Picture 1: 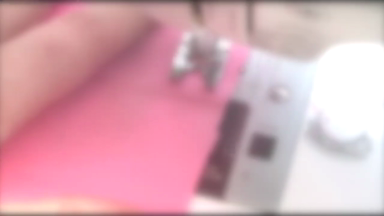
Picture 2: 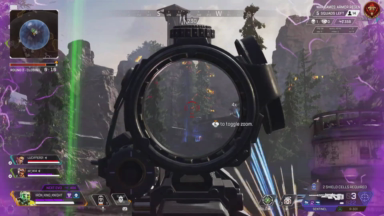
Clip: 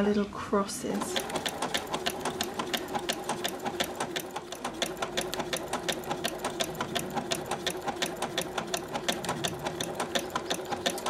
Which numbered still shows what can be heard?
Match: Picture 1